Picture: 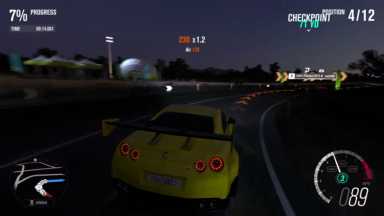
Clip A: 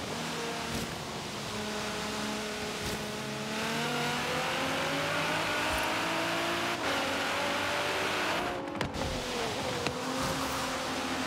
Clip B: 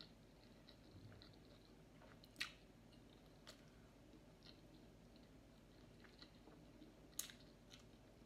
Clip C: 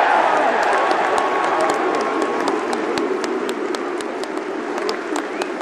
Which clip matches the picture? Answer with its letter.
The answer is A